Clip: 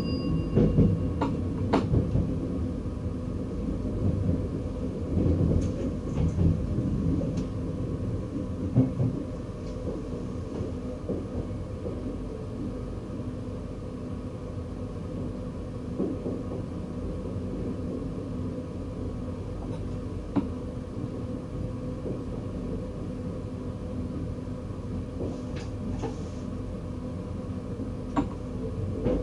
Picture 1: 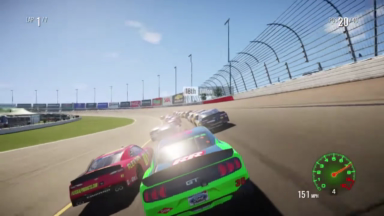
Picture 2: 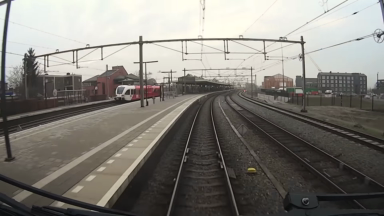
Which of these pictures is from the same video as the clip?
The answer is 2